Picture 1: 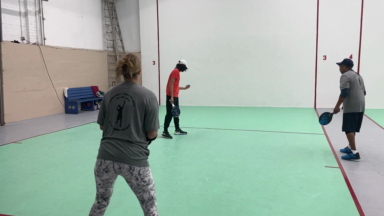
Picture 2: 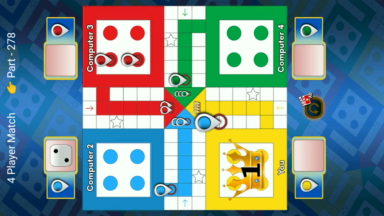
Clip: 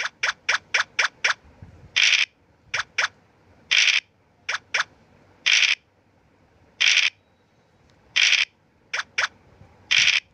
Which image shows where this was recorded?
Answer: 2